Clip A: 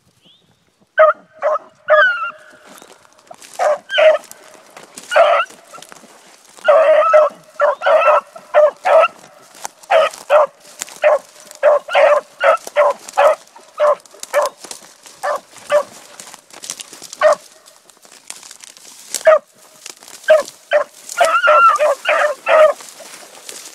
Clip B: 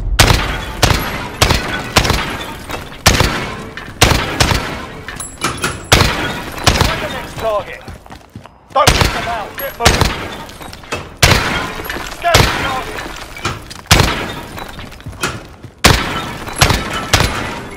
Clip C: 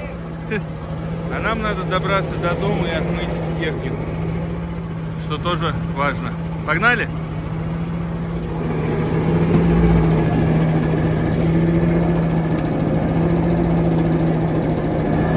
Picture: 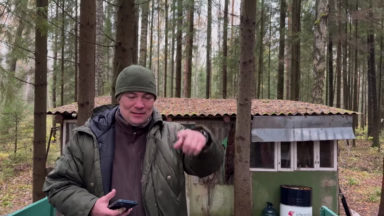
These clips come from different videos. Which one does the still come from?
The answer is C